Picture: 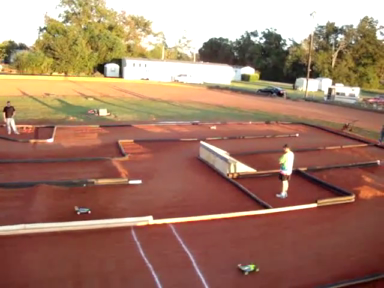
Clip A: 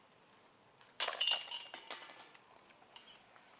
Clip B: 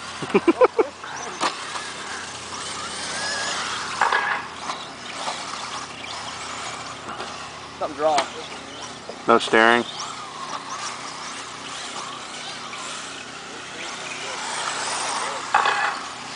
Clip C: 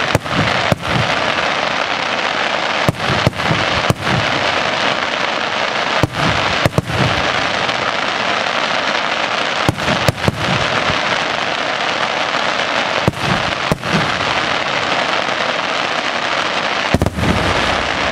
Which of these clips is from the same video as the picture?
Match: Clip B